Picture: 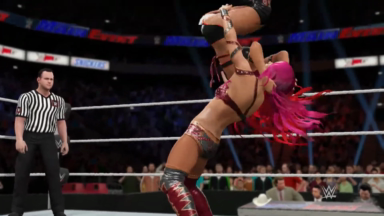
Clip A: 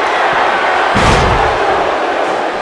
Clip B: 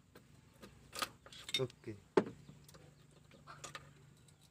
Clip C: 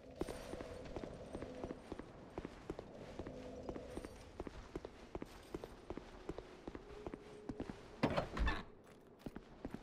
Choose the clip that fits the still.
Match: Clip A